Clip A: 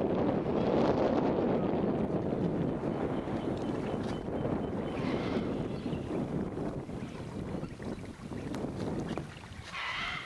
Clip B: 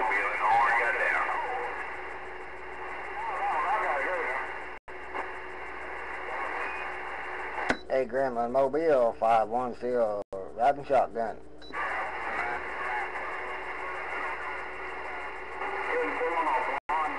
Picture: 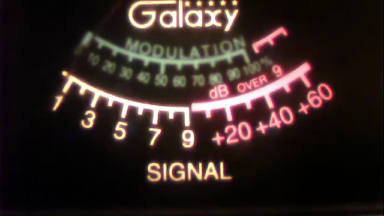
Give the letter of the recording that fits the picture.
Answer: B